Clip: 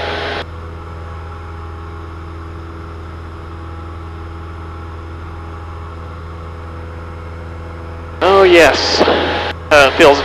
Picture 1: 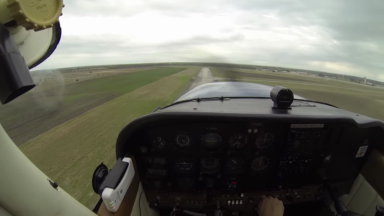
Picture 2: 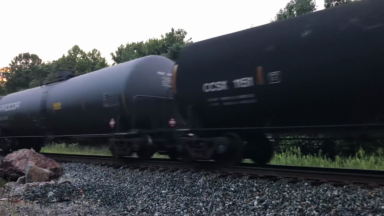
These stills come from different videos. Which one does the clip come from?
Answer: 1